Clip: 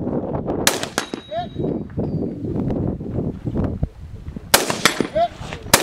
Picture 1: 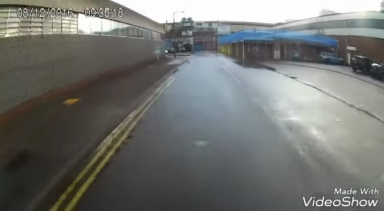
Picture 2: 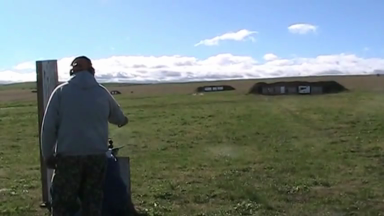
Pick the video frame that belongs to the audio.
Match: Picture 2